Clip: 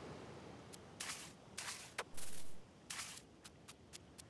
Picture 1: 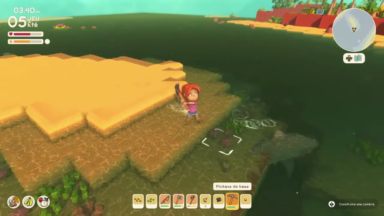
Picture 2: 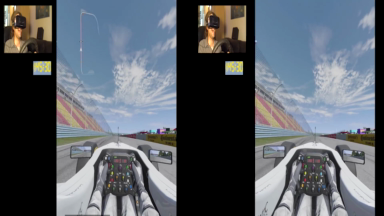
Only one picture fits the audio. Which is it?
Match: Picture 1